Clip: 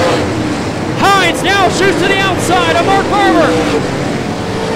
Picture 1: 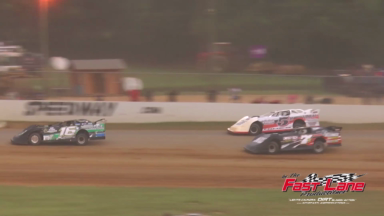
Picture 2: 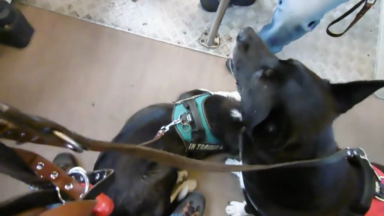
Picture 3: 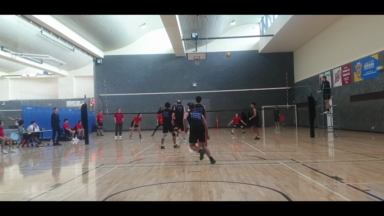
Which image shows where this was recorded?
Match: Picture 1